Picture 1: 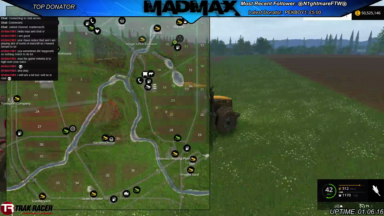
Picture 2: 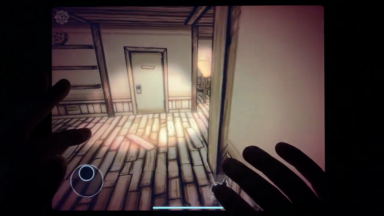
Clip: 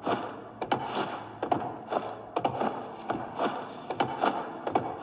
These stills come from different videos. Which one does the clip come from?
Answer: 2